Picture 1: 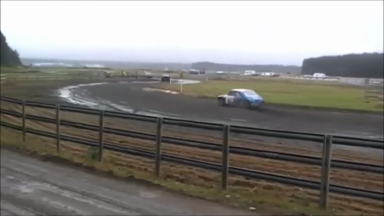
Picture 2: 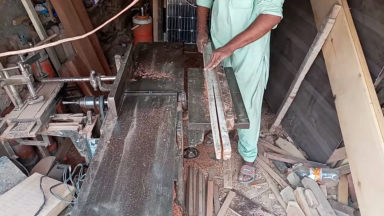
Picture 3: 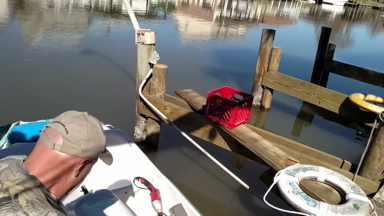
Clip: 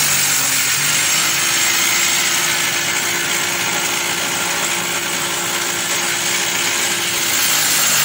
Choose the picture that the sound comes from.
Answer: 2